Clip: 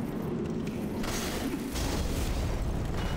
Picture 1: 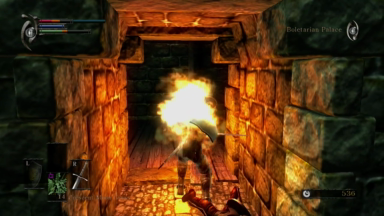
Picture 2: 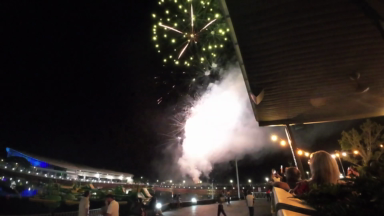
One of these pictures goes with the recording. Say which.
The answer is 1